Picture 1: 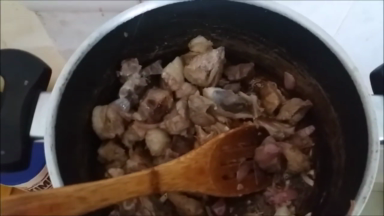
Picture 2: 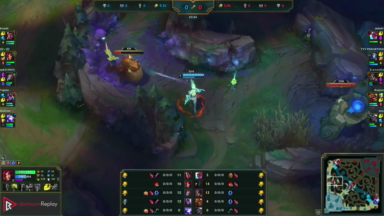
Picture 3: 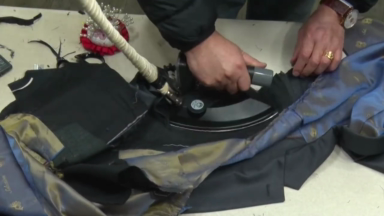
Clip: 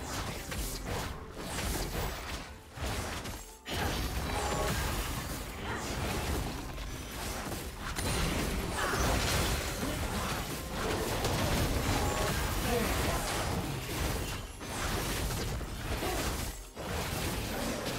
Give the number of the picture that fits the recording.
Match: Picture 2